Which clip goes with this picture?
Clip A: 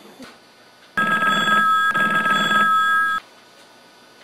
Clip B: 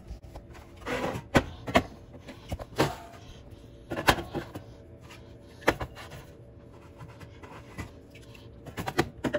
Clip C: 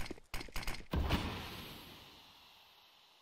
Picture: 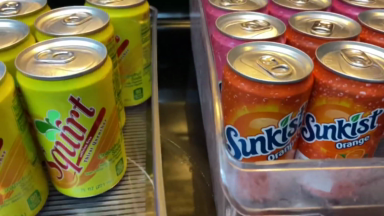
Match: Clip B